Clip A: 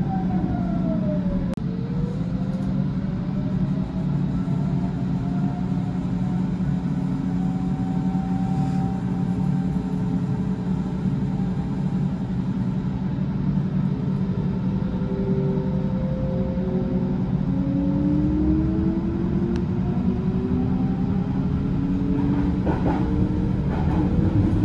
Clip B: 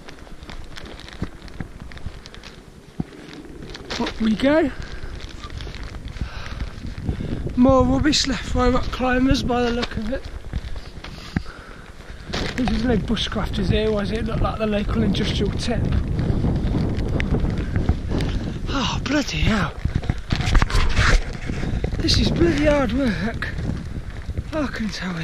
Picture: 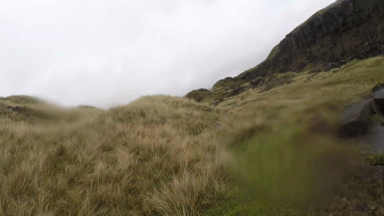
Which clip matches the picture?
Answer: B